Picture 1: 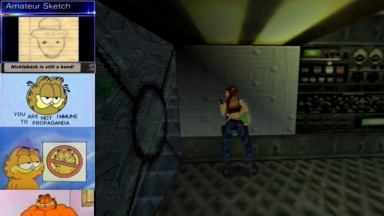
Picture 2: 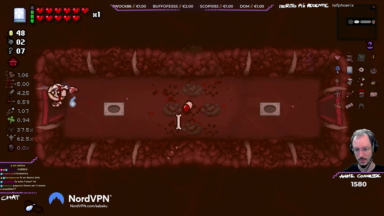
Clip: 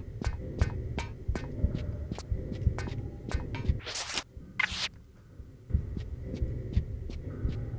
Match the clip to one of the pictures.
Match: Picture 1